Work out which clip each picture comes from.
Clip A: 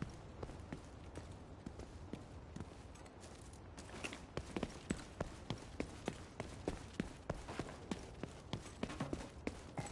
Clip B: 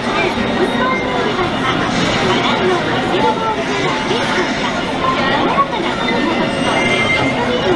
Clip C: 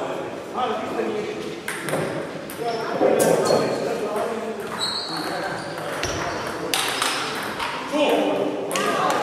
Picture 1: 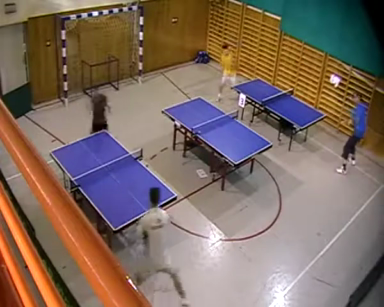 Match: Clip C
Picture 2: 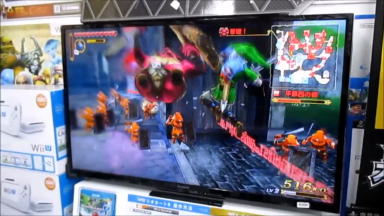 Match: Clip B